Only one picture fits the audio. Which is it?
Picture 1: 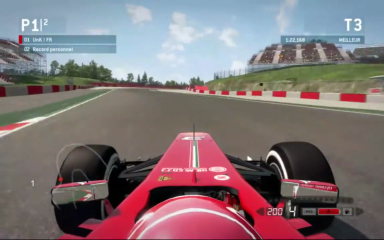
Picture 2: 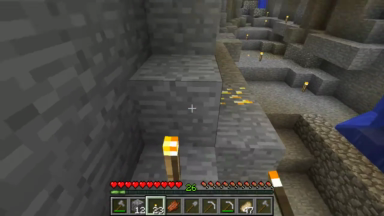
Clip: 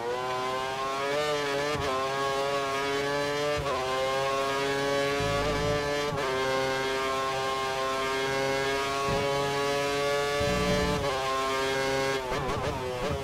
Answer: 1